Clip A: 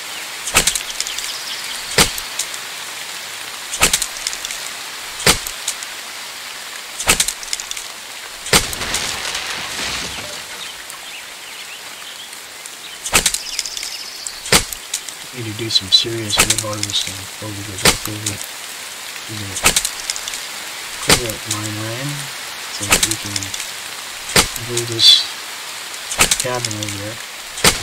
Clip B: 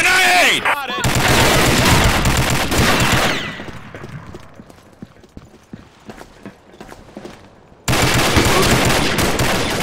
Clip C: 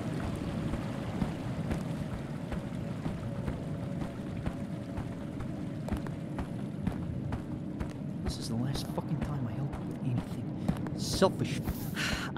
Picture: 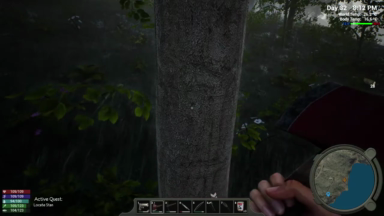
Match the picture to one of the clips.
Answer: A